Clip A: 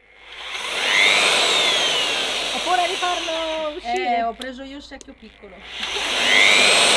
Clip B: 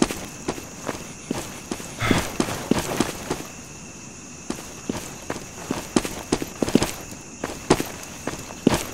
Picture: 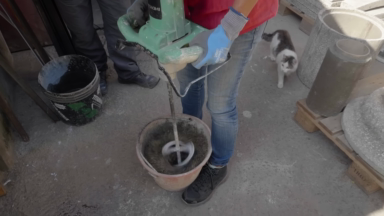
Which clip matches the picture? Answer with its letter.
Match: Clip A